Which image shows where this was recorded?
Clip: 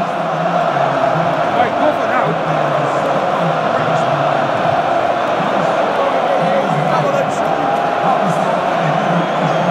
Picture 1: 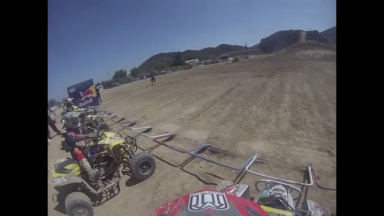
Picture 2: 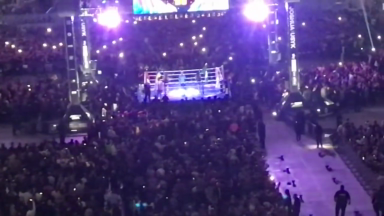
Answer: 2